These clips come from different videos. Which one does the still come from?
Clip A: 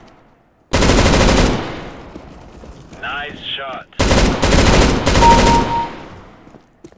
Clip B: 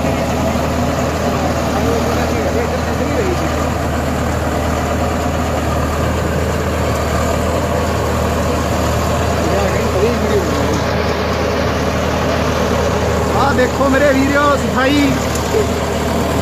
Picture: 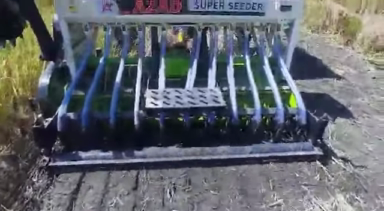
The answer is B